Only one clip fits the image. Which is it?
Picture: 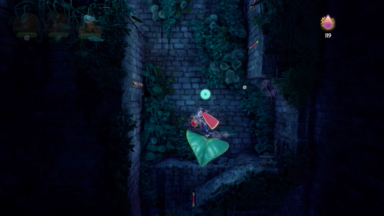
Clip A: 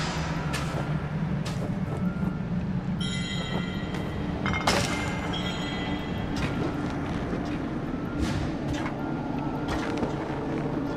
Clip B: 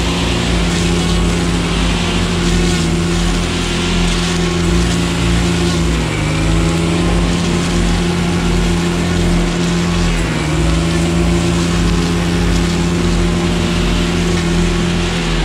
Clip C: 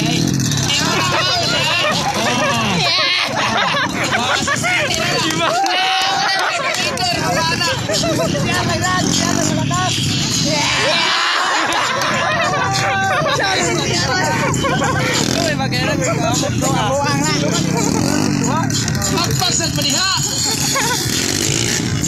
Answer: A